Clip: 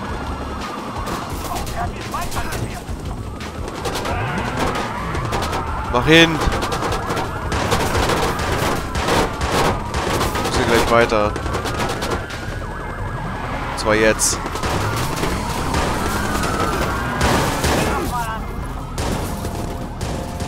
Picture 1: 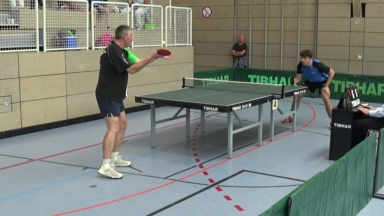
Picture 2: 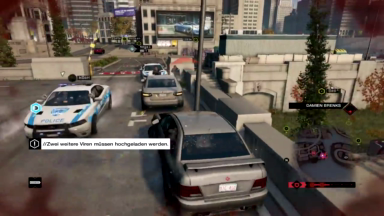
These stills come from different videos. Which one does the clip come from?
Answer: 2